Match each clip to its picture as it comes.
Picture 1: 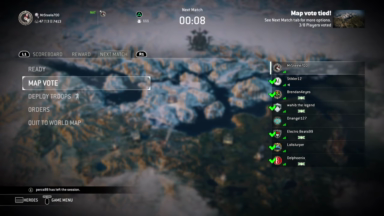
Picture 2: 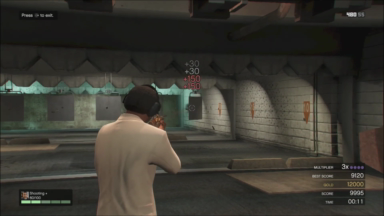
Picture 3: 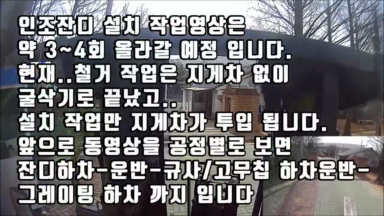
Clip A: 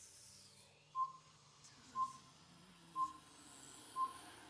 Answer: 1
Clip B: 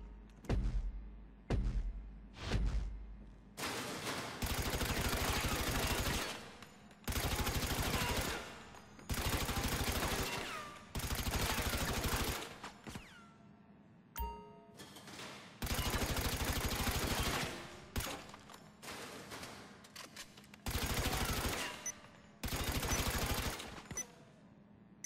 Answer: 2